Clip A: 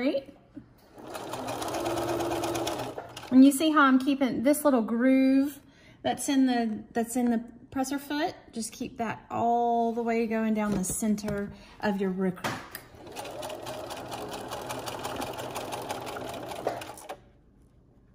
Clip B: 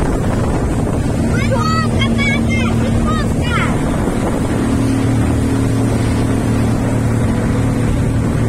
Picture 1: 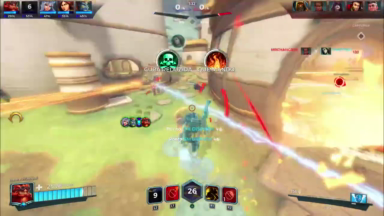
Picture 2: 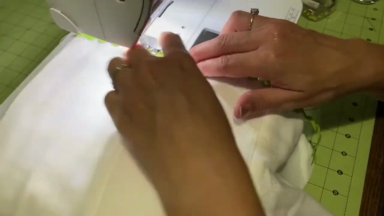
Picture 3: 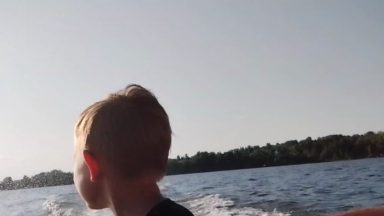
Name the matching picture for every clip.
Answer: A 2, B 3